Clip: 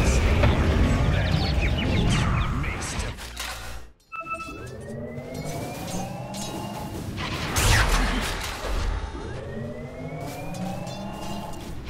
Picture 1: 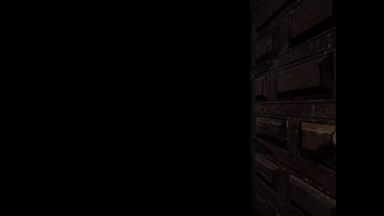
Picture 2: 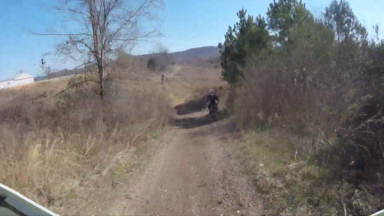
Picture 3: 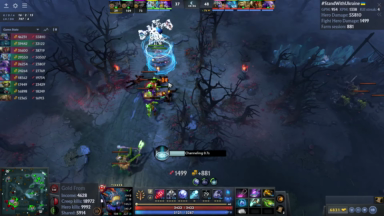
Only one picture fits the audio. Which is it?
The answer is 3